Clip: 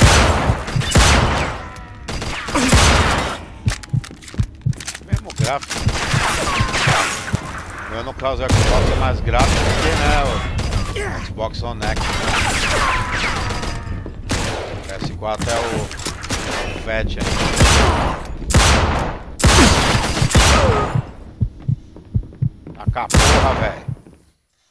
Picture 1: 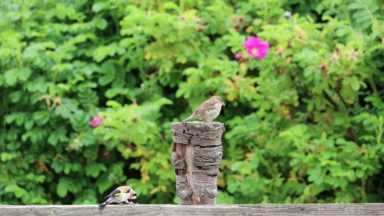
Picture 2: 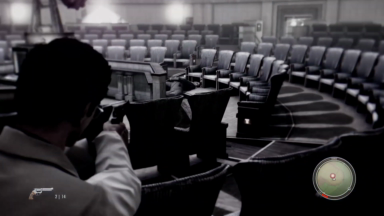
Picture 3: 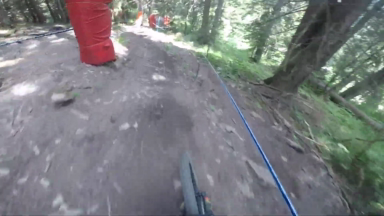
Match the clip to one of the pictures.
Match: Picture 2